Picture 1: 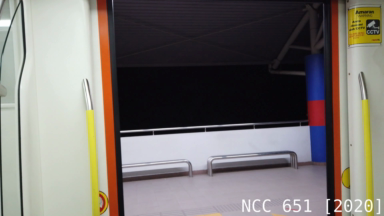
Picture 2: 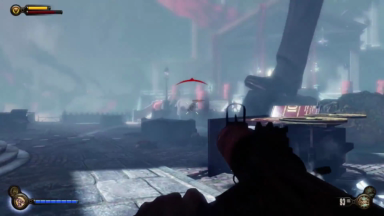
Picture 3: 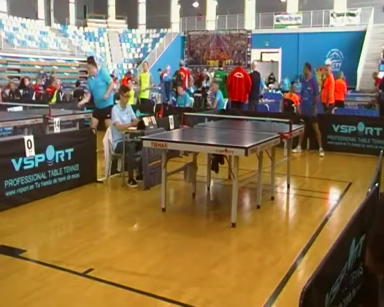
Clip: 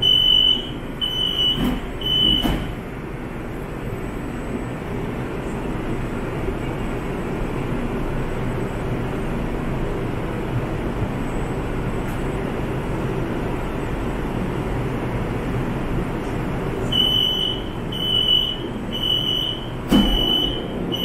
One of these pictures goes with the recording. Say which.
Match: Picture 1